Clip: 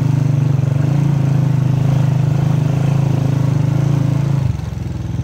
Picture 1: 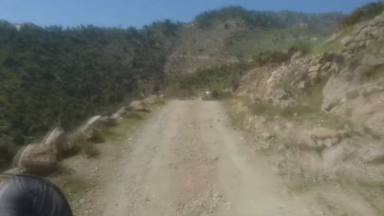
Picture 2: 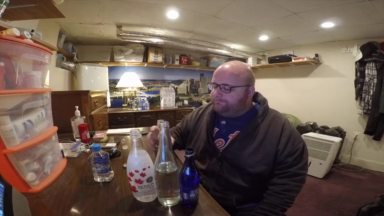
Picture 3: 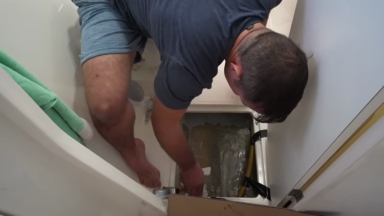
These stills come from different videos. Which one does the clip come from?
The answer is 1